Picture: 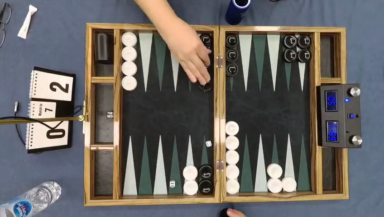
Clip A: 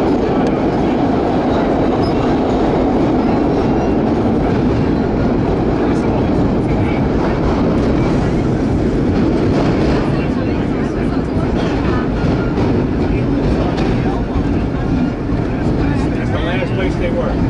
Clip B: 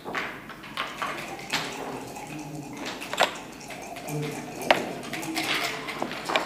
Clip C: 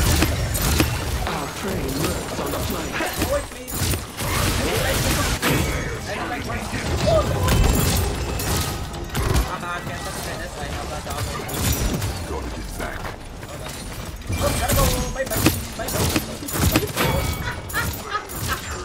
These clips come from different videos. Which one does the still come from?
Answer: B